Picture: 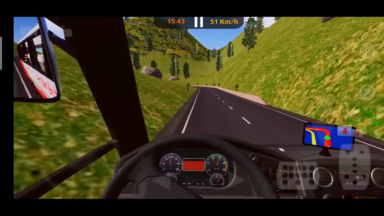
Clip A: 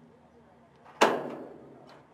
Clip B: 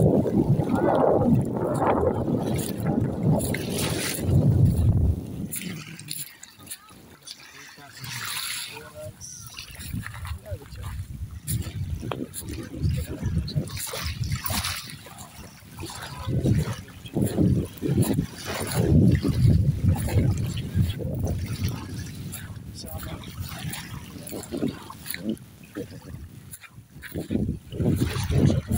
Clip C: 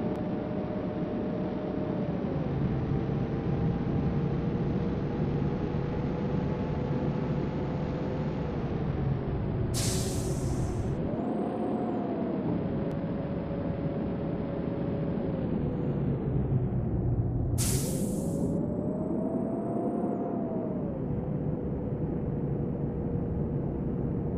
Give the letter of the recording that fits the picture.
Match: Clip C